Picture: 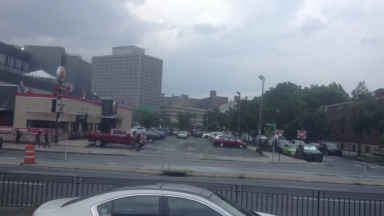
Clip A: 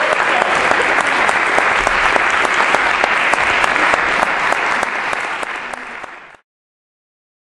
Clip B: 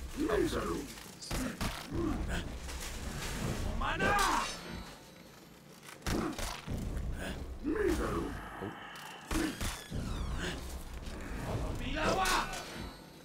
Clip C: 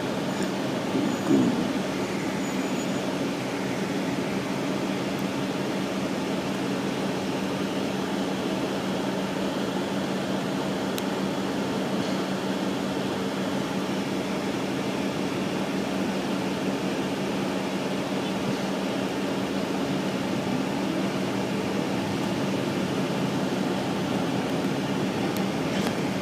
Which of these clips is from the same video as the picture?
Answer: C